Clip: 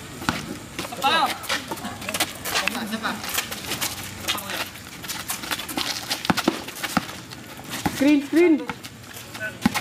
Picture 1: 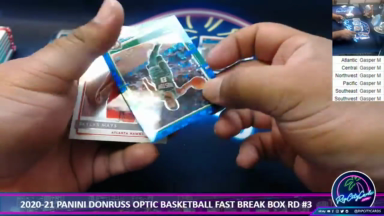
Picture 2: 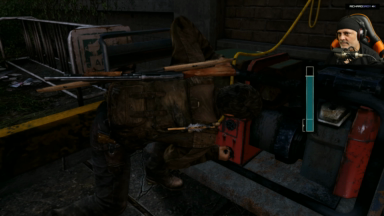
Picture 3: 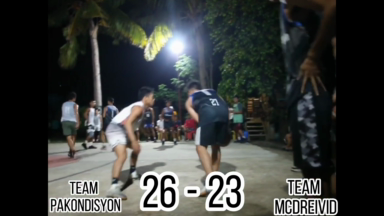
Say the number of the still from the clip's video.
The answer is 3